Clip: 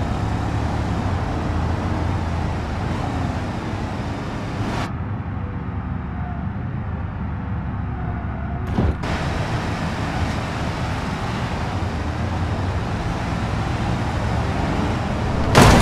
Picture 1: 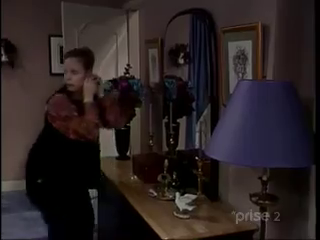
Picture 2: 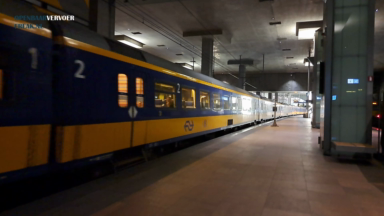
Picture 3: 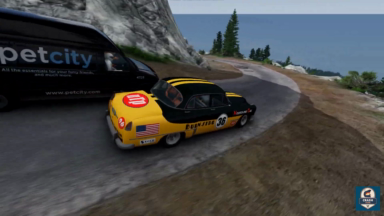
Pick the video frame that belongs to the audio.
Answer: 3